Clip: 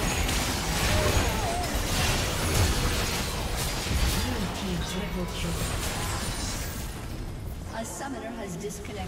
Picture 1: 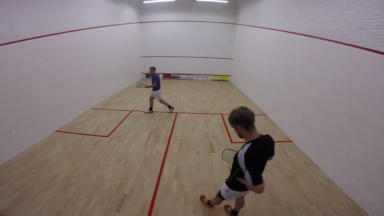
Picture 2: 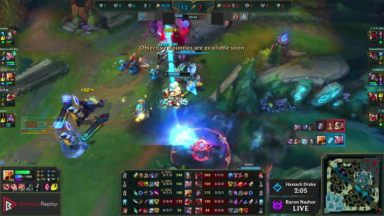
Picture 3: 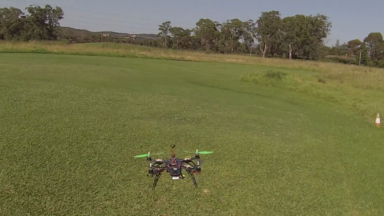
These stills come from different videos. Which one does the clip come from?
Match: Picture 2